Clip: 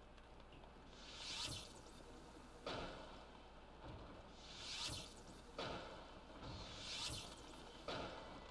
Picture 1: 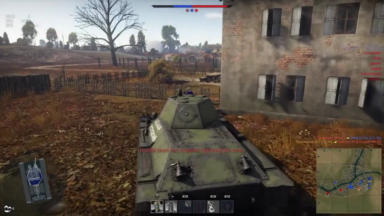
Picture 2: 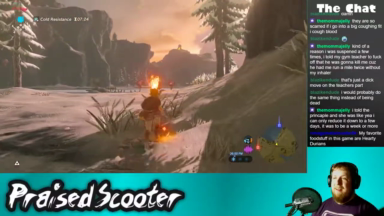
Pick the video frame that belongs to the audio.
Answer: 2